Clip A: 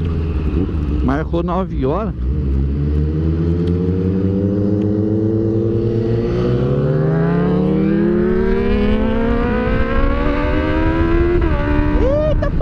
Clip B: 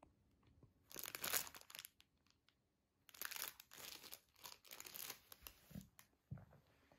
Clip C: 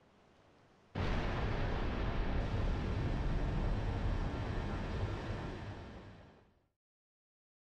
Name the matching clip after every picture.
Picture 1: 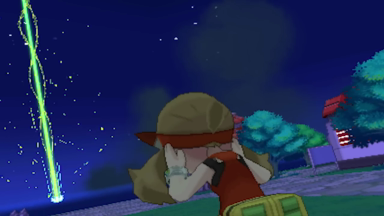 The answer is C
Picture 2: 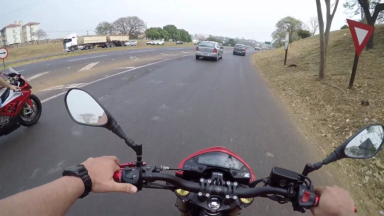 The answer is A